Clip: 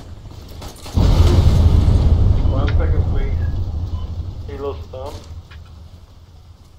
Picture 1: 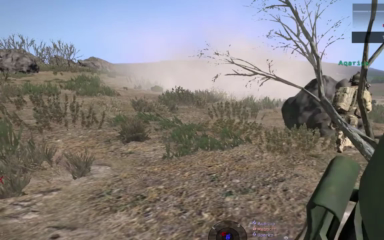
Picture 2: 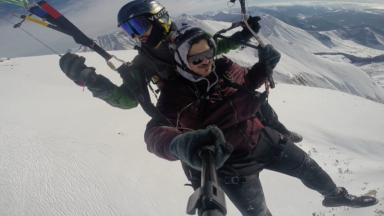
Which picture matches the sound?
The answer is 1